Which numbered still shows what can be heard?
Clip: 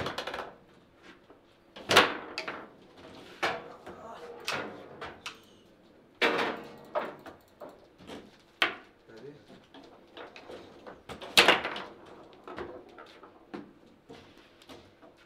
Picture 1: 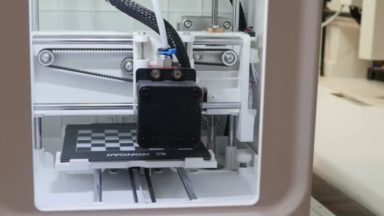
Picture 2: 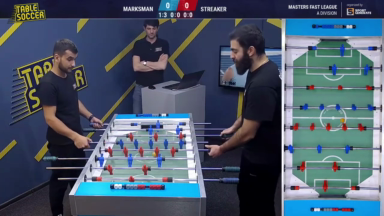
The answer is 2